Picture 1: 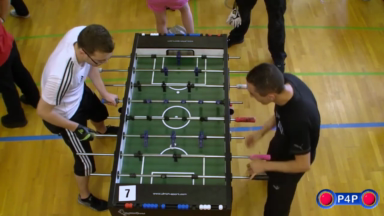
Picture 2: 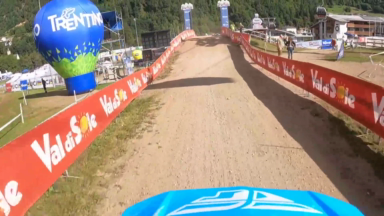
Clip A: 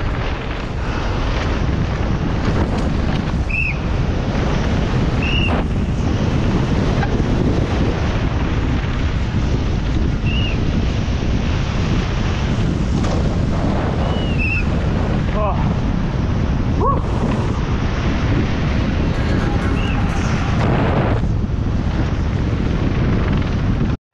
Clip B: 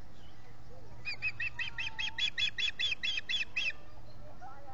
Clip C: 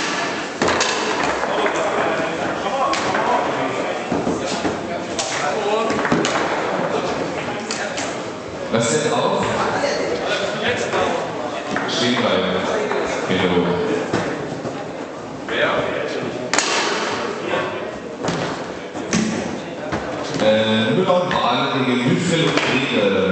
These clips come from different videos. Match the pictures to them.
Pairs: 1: C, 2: A